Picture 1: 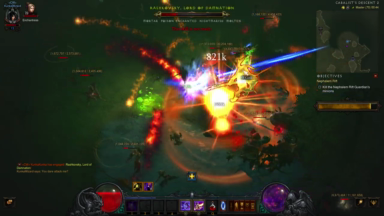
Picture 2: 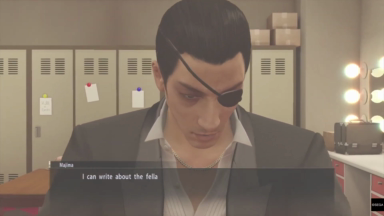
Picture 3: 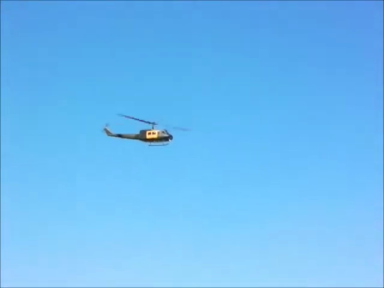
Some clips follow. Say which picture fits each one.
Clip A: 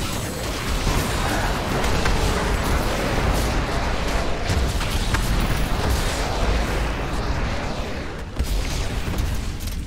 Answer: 1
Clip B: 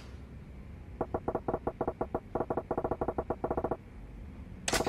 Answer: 2